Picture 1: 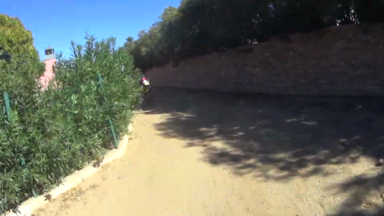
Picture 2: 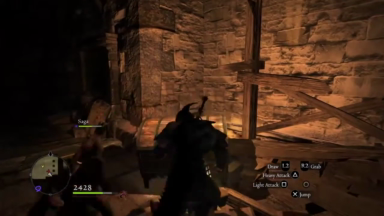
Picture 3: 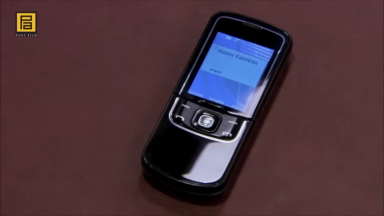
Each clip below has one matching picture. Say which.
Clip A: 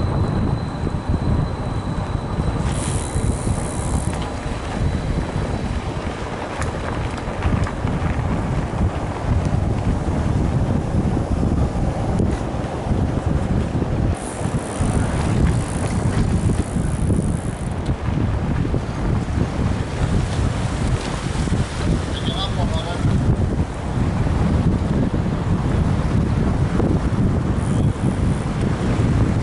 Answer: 1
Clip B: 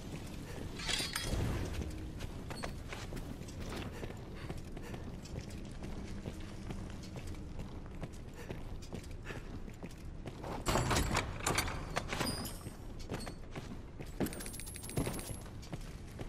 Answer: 2